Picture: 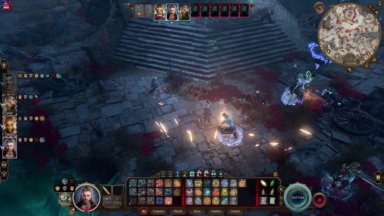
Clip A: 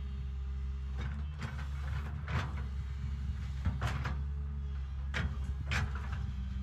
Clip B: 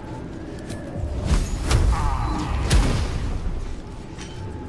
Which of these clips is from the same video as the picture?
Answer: B